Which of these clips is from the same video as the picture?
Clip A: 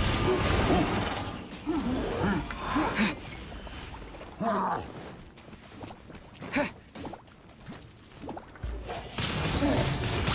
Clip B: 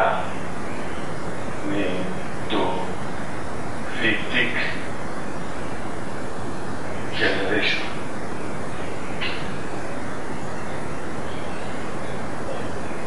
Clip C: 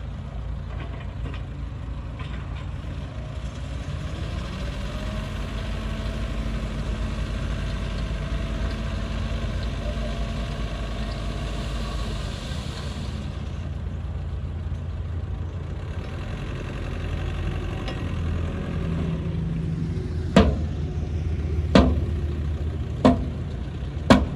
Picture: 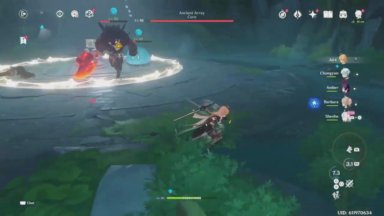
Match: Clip A